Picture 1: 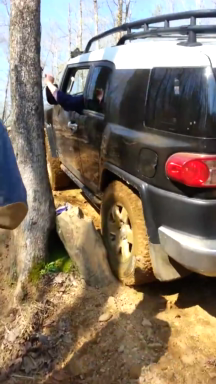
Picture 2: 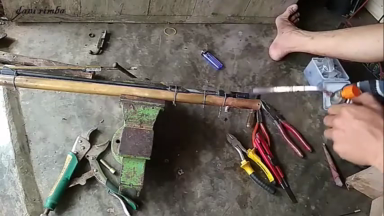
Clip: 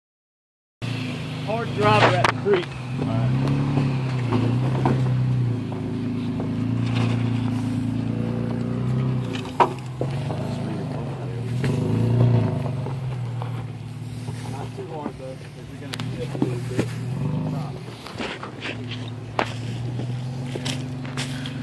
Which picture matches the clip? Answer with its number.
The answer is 1